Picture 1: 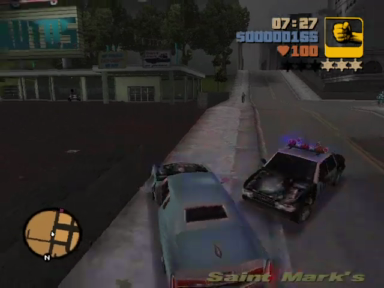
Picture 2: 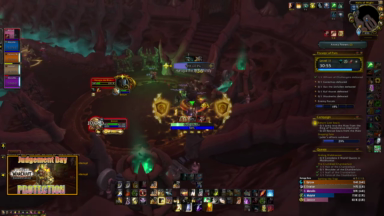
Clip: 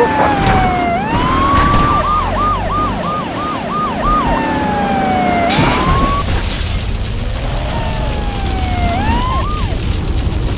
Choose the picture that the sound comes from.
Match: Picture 1